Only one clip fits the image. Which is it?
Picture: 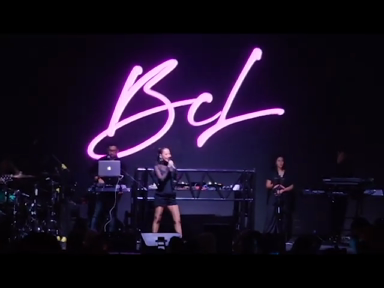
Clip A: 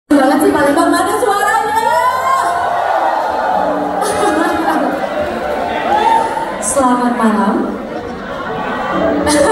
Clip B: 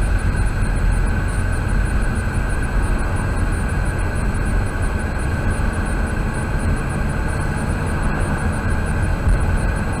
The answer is A